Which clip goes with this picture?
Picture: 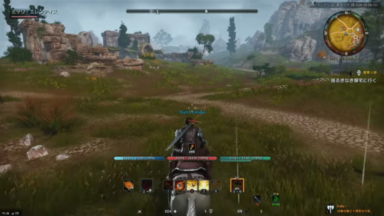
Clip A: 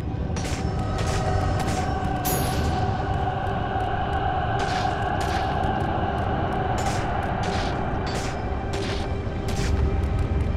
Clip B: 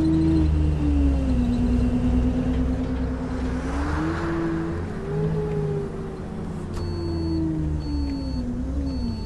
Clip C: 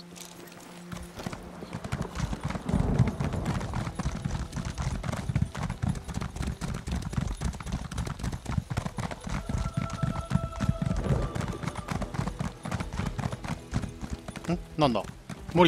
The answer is C